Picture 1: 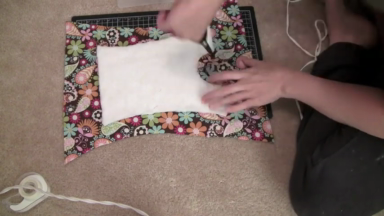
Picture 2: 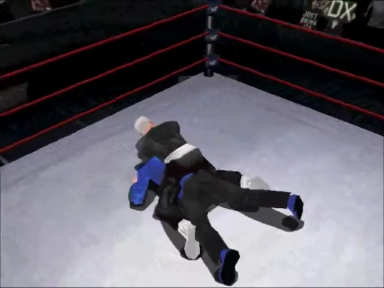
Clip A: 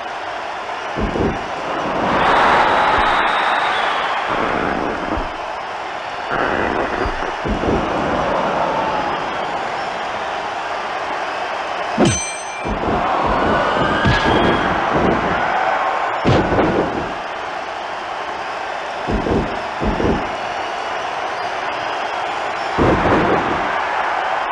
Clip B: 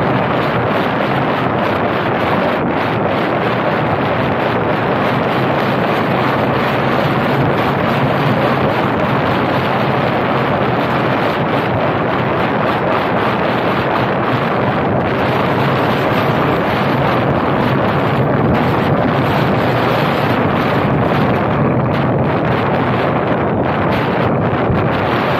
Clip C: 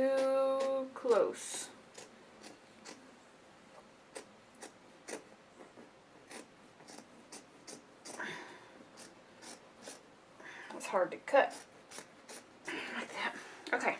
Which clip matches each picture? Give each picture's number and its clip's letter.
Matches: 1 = C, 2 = A